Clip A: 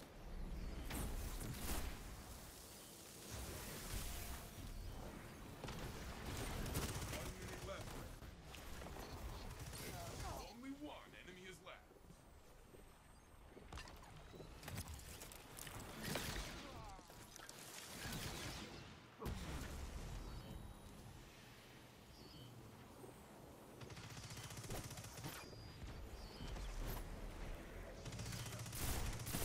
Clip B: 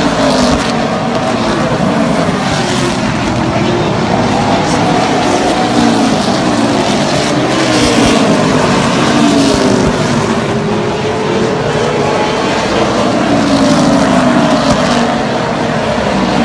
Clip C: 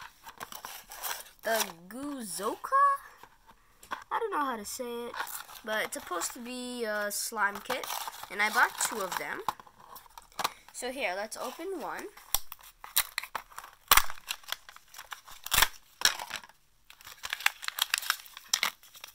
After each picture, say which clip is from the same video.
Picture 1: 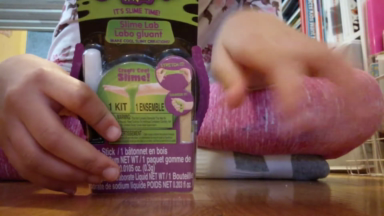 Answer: C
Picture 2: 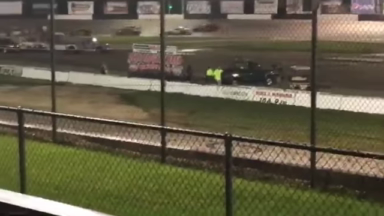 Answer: B